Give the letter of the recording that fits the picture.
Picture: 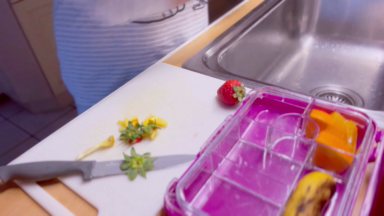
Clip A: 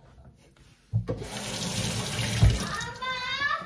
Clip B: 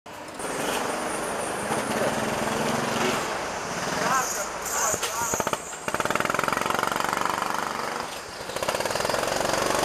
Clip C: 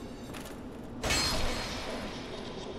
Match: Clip A